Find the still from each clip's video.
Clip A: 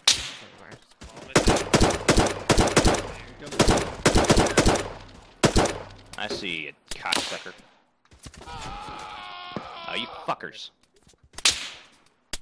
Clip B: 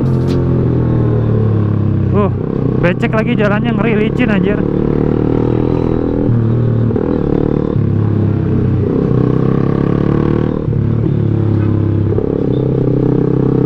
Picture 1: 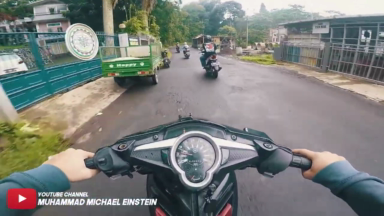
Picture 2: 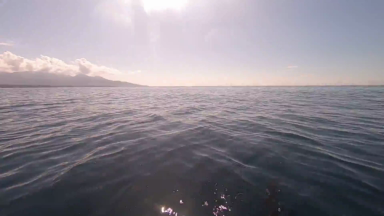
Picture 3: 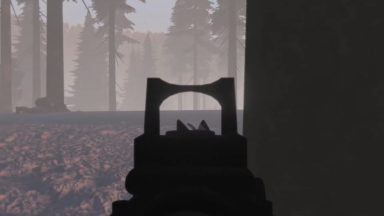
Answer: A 3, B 1